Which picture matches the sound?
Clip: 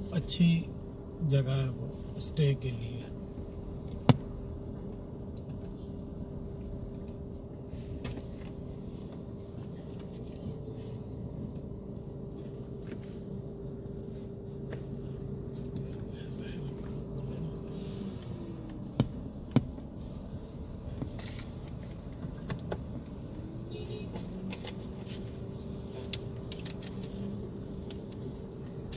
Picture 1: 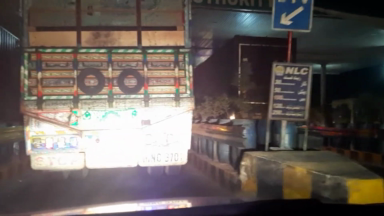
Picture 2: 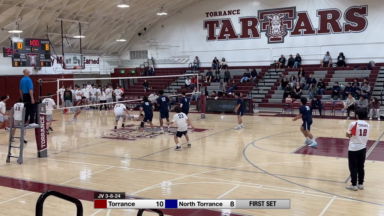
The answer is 1